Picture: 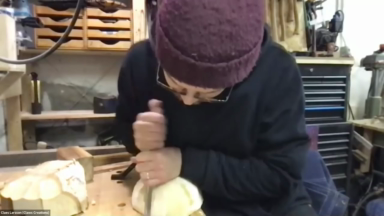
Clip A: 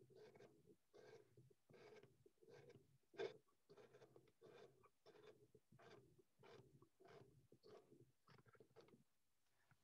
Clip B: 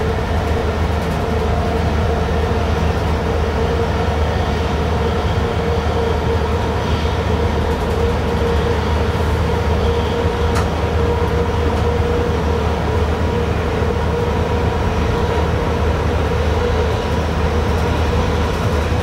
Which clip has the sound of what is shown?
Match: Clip A